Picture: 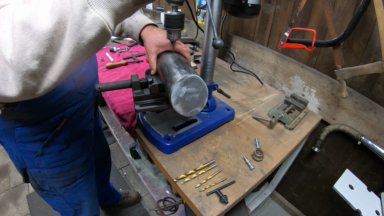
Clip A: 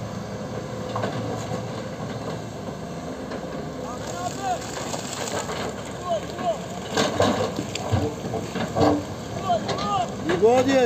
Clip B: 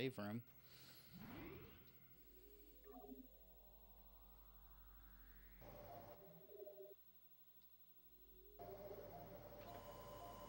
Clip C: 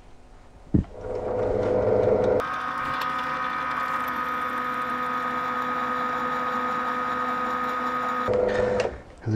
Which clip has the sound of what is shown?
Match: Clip C